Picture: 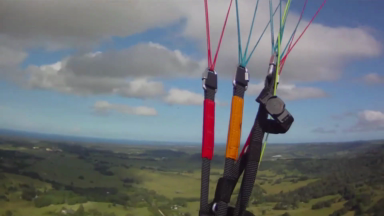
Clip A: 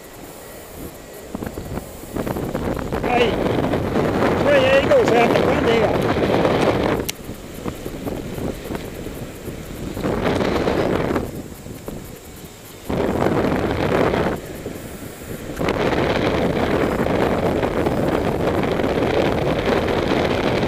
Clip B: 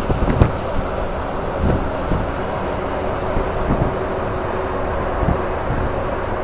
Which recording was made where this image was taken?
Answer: A